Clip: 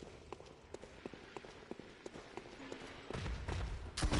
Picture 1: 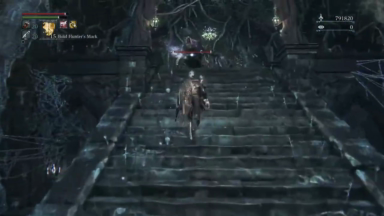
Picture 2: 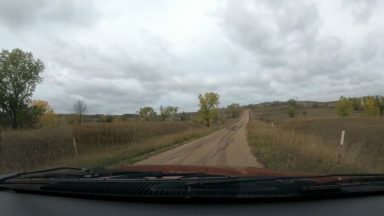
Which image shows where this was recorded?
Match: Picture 1